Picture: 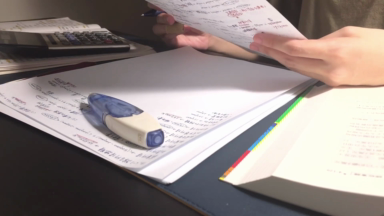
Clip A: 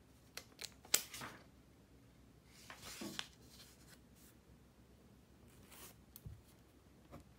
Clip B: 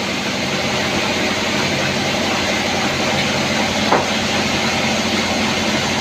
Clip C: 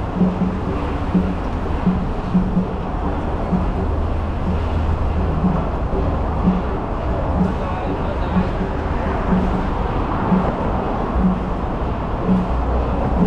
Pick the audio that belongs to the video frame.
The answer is A